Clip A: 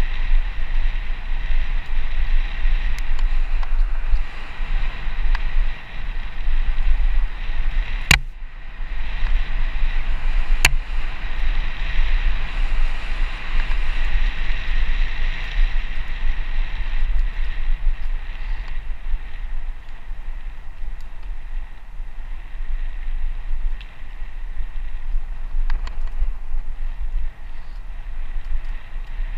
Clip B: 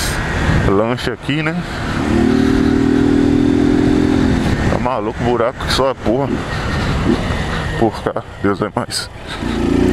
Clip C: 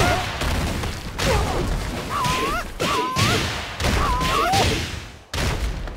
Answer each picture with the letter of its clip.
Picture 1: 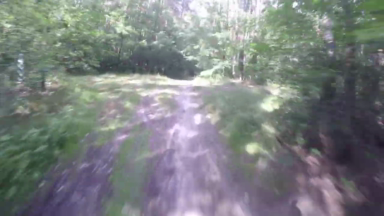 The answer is A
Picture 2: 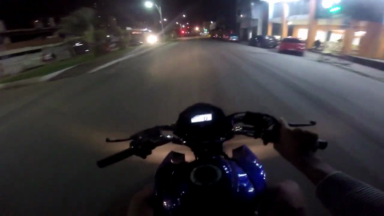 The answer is B